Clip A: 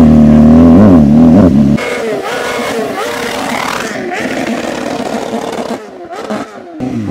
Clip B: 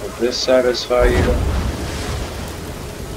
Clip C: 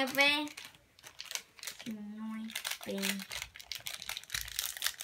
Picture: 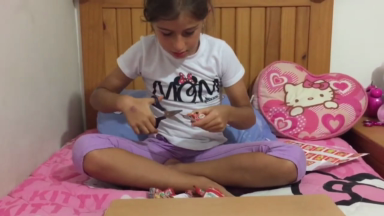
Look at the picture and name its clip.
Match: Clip C